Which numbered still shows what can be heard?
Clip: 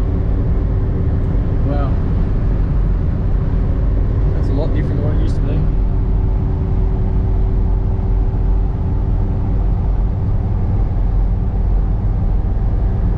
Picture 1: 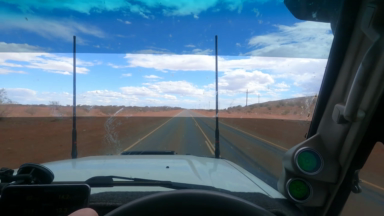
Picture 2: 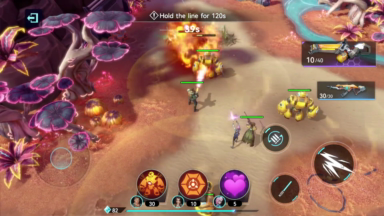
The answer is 1